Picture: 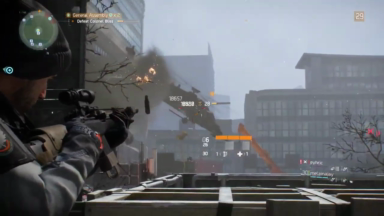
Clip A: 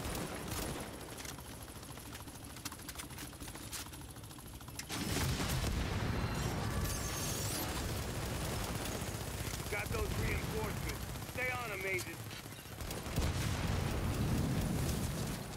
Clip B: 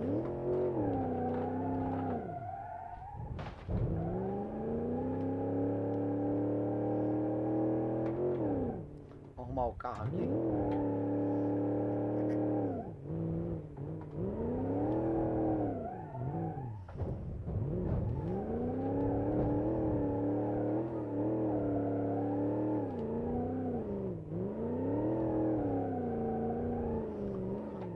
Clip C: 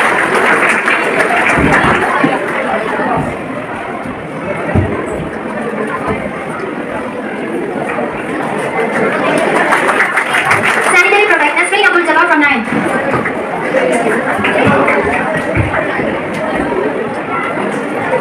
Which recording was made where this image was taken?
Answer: A